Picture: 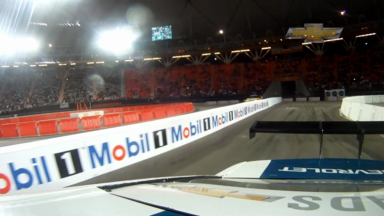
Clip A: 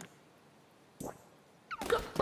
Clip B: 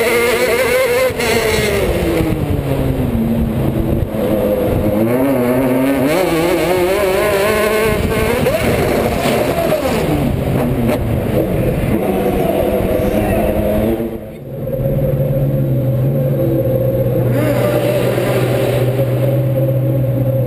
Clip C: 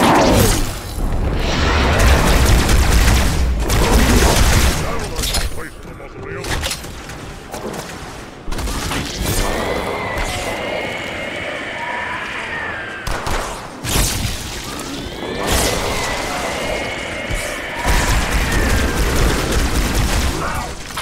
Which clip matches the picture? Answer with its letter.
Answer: B